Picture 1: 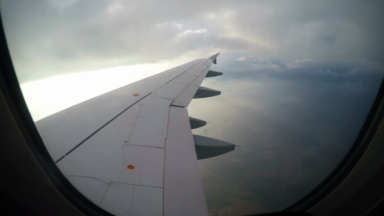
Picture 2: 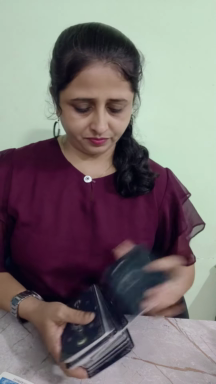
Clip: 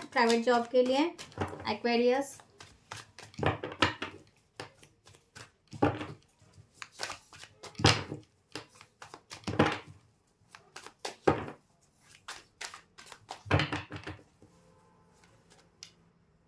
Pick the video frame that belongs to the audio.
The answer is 2